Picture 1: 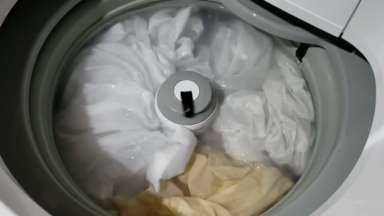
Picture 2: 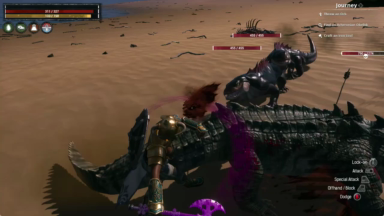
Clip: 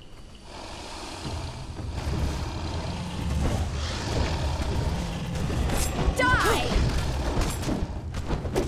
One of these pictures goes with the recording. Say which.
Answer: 2